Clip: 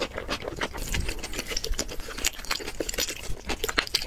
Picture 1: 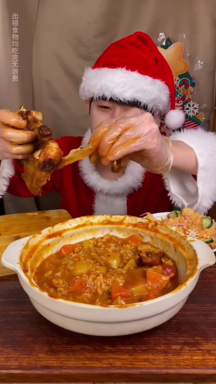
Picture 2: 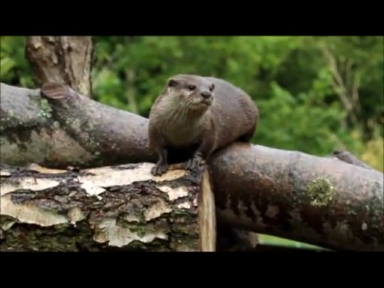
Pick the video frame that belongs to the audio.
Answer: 1